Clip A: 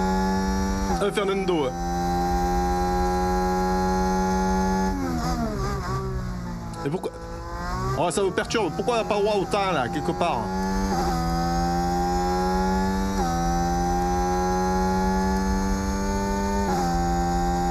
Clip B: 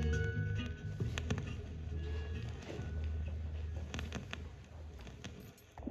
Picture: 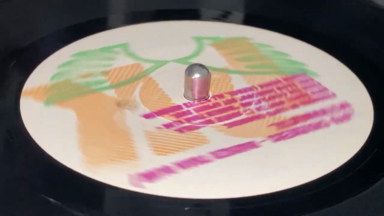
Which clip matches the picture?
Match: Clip B